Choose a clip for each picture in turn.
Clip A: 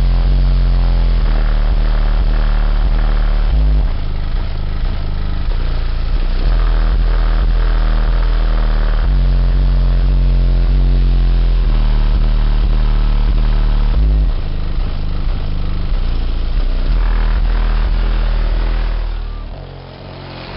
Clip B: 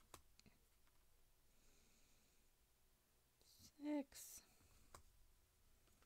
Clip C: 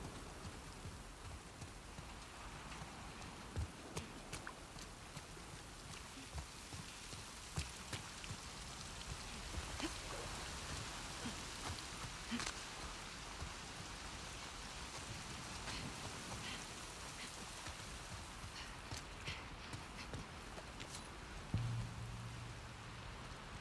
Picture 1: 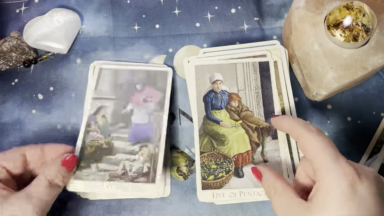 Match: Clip B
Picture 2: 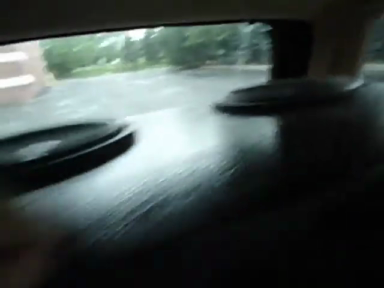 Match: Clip A